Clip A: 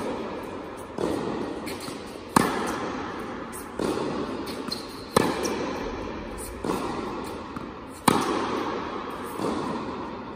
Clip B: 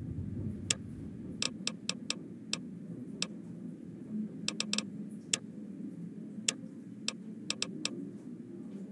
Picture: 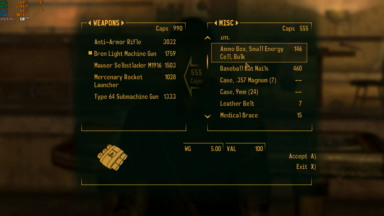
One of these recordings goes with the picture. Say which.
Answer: B